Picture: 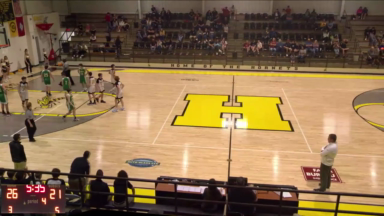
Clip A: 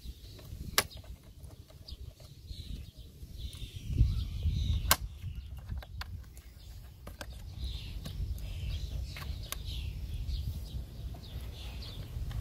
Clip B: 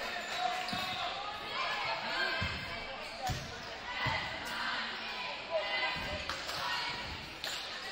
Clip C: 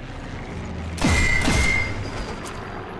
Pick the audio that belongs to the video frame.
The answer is B